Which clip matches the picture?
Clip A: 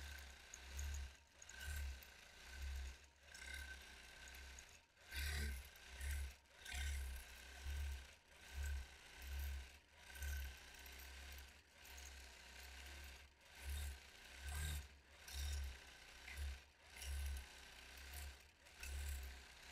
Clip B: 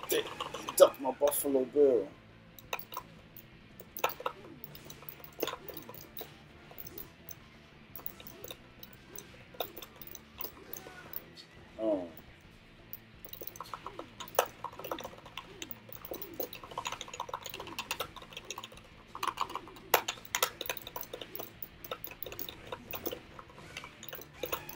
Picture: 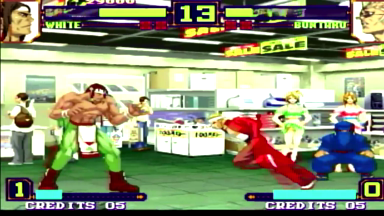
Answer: B